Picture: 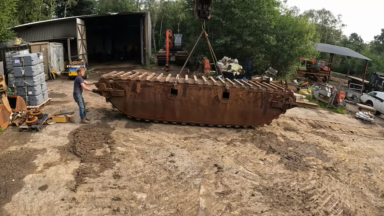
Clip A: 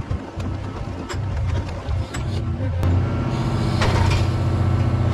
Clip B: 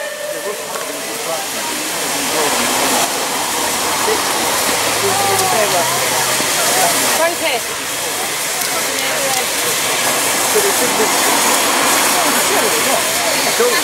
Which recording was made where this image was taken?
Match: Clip A